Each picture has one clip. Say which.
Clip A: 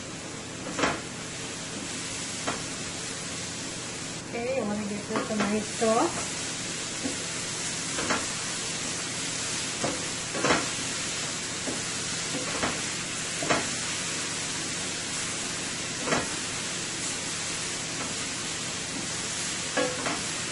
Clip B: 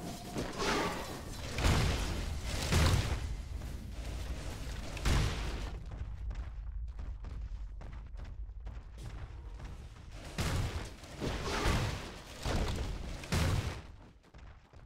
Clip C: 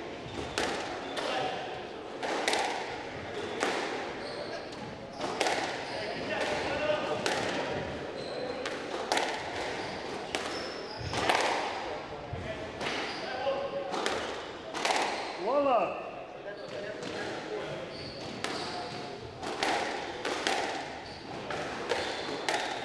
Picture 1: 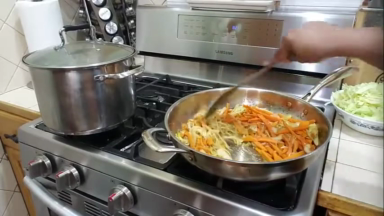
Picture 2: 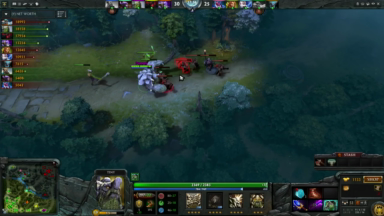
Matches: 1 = A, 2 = B